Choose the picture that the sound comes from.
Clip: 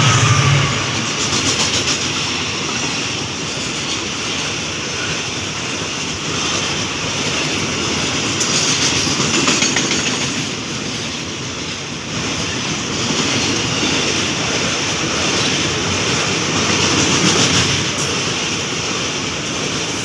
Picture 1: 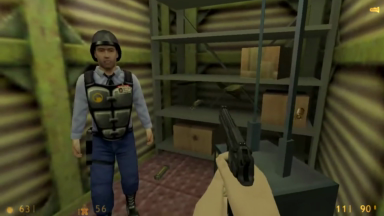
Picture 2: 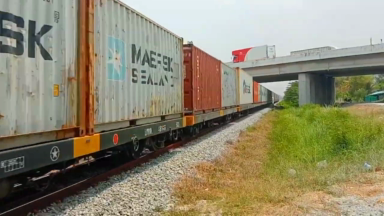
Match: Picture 2